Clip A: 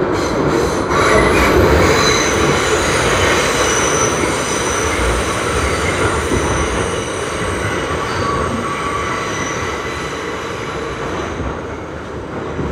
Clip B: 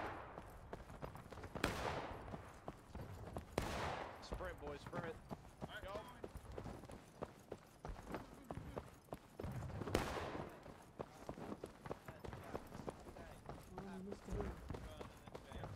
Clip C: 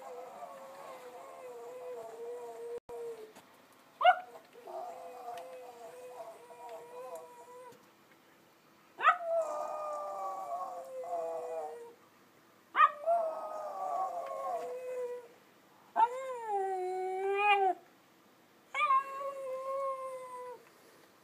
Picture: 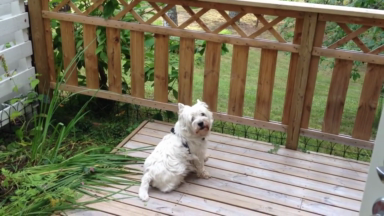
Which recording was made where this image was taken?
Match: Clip C